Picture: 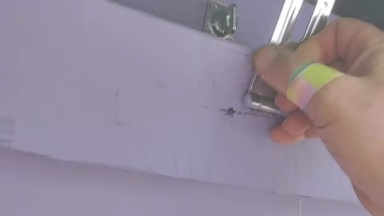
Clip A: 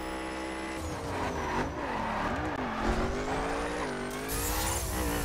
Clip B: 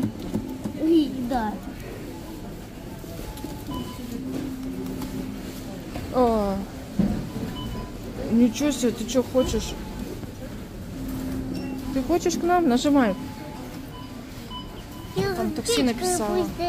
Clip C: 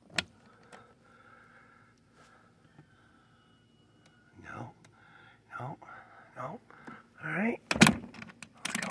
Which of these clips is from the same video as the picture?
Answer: C